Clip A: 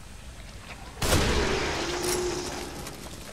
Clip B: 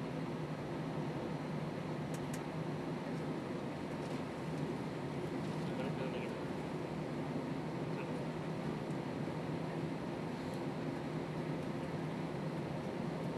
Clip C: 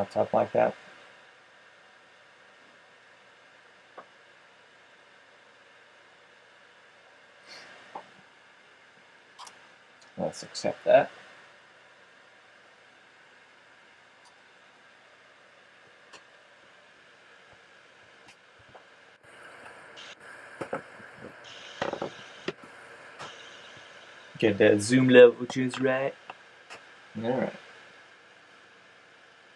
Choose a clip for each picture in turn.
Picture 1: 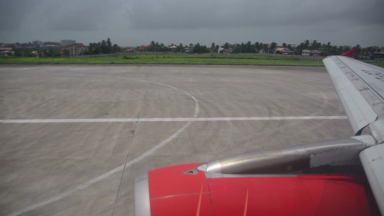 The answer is B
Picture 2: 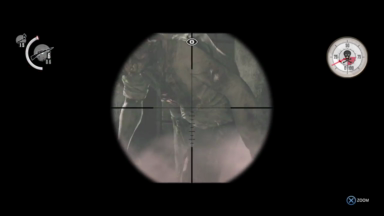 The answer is A